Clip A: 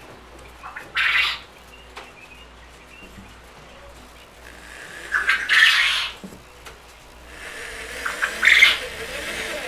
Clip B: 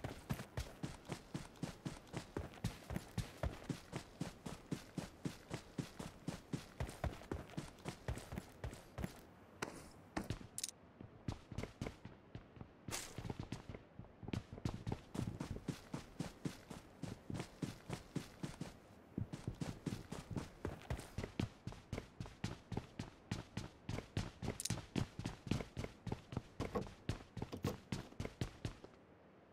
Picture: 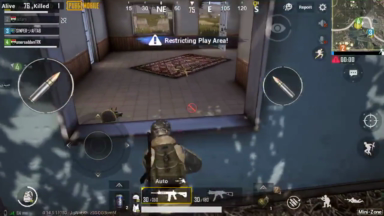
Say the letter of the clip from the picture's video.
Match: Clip B